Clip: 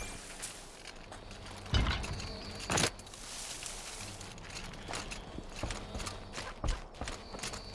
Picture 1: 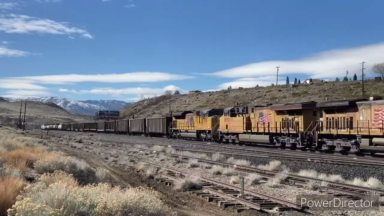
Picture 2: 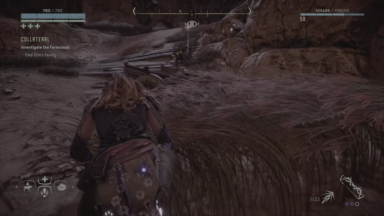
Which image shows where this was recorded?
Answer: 2